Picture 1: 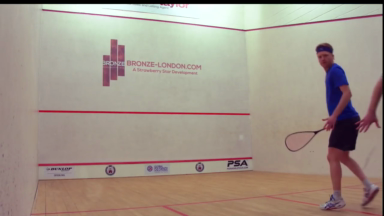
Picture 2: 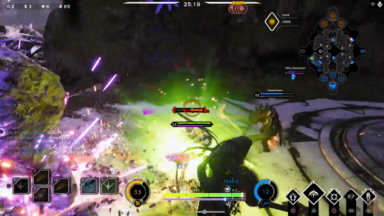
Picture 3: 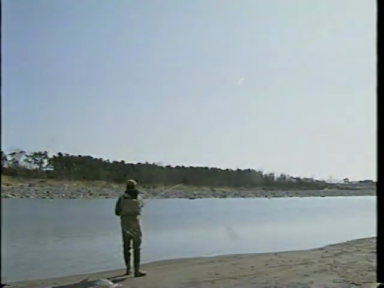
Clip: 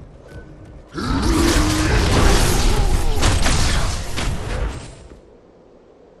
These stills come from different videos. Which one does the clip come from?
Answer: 2